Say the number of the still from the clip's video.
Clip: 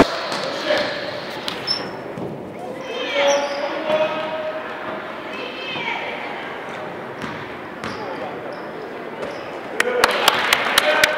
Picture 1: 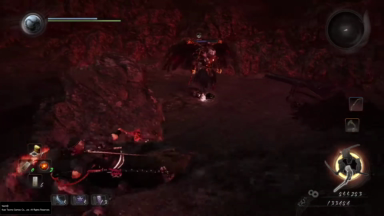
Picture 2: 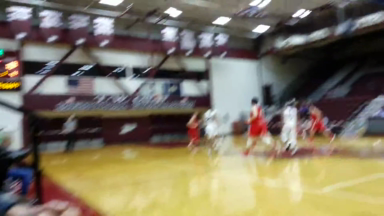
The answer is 2